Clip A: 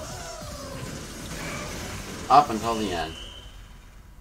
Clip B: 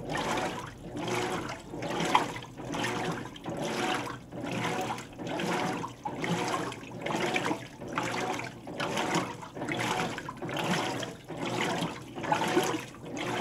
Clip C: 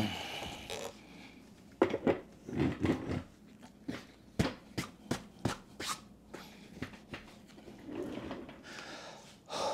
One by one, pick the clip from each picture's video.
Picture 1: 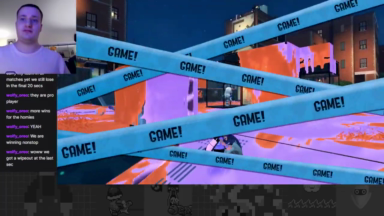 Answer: A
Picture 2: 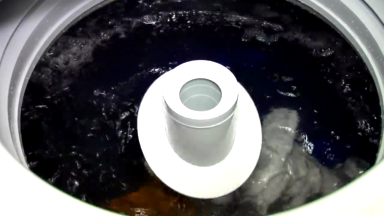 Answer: B